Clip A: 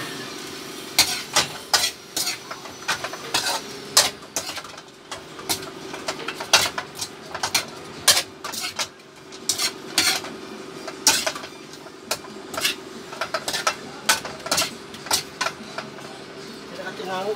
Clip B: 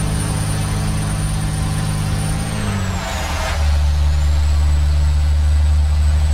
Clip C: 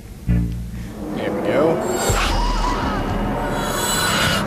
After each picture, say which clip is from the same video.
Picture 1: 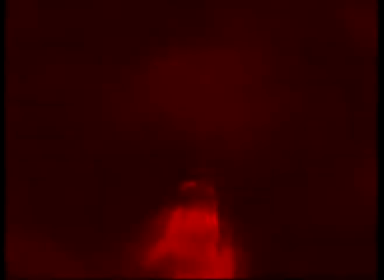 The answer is C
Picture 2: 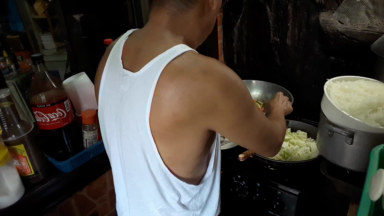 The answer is A